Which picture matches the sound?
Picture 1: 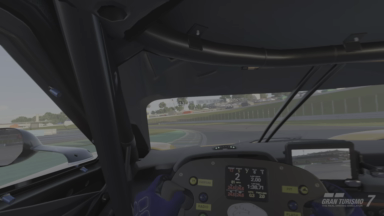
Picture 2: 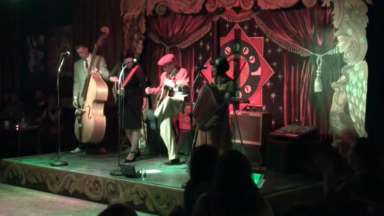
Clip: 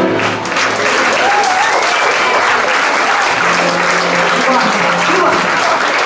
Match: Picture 2